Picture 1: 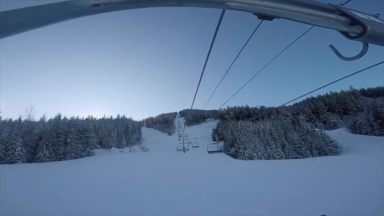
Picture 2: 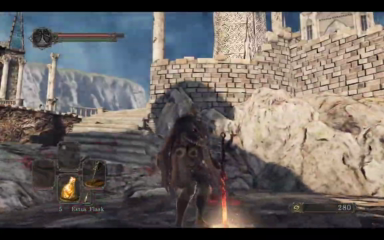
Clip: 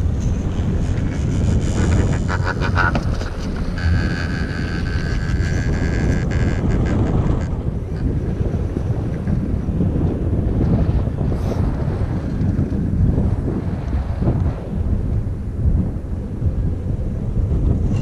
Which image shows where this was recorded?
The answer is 1